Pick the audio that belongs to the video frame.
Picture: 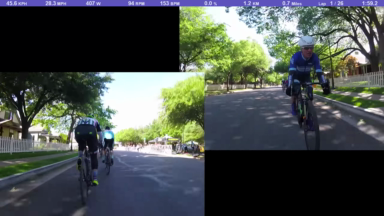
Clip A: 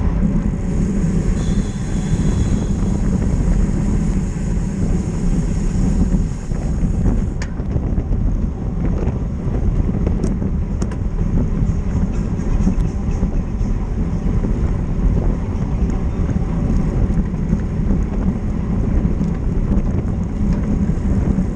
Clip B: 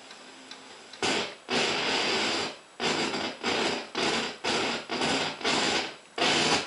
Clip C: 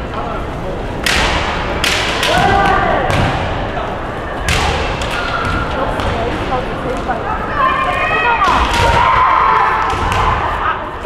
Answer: A